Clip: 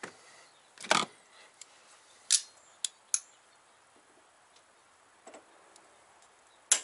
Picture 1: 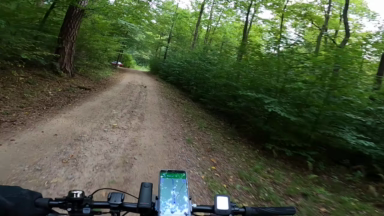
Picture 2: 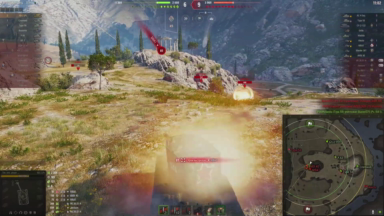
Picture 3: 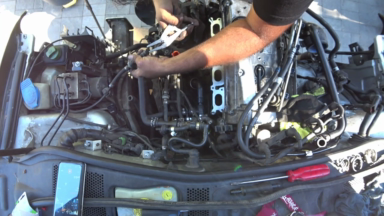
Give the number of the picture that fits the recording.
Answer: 3